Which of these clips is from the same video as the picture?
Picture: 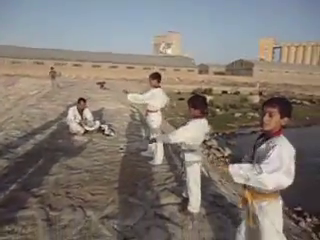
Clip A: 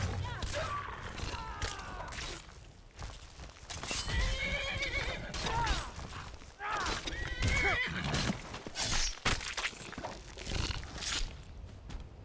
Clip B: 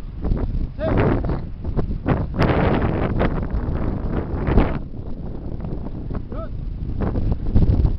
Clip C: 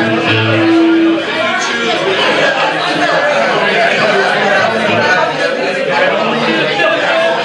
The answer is B